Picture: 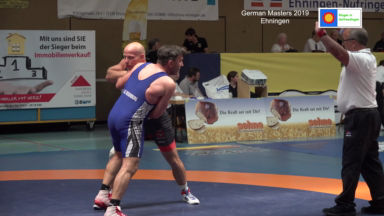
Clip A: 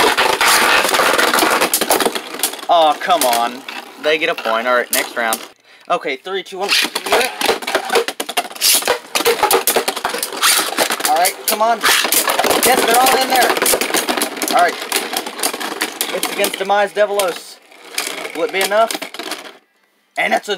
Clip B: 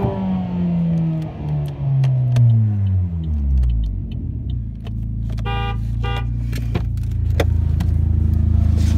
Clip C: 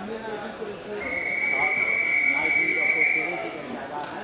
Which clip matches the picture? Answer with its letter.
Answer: C